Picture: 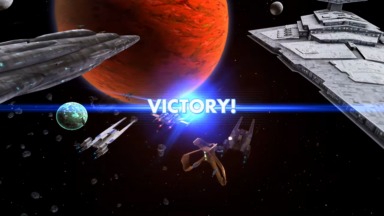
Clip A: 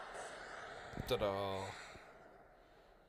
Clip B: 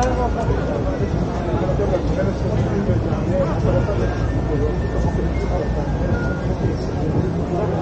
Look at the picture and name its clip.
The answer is A